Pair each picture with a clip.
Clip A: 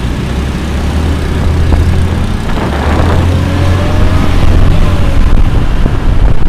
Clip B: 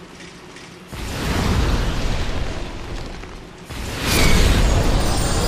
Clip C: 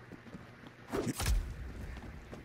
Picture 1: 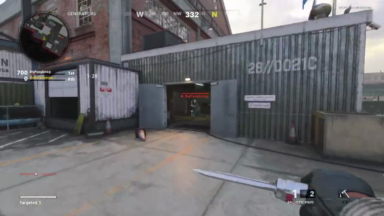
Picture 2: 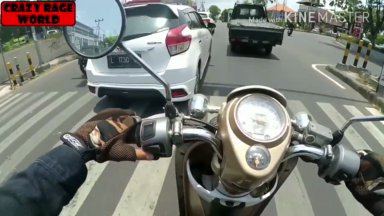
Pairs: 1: C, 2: A